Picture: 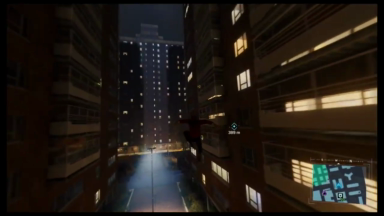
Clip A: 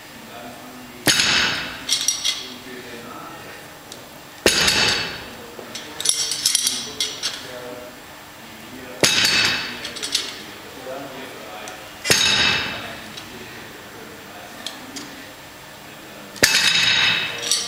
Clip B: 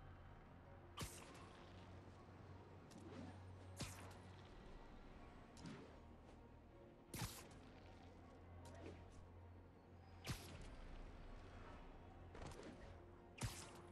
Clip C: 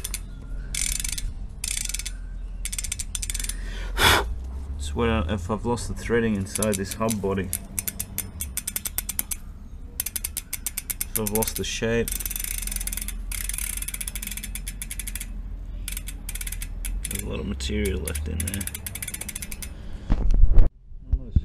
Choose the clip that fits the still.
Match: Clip B